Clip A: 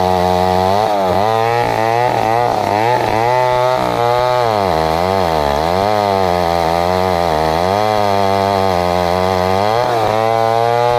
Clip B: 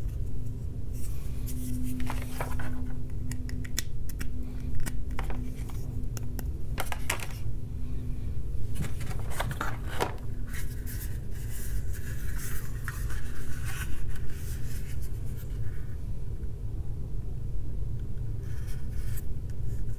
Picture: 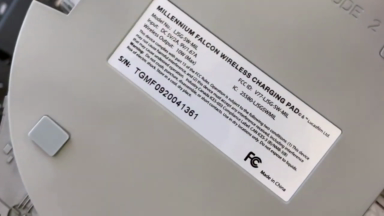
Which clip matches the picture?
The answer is B